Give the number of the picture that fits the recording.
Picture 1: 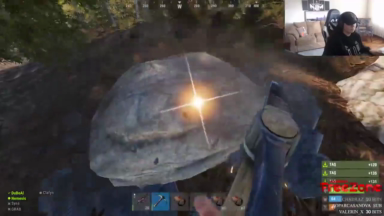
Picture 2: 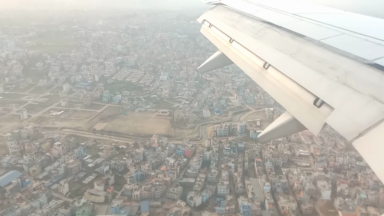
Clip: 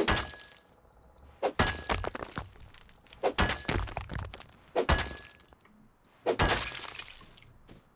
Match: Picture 1